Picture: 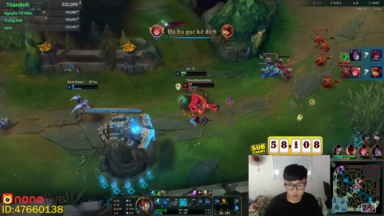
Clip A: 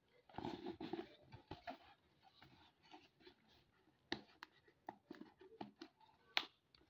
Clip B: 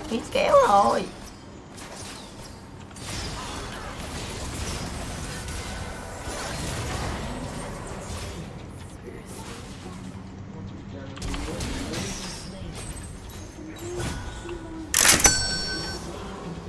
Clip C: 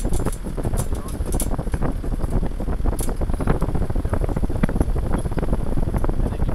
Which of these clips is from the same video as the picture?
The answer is B